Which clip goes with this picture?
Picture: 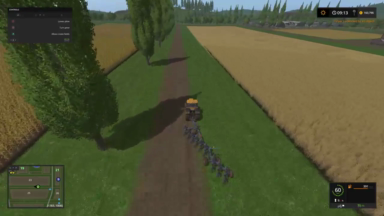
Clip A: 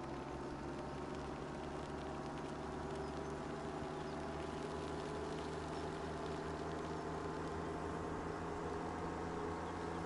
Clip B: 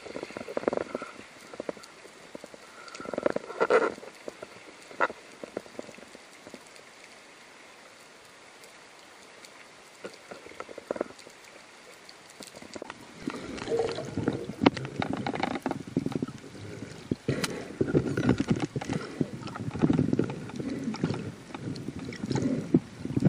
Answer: A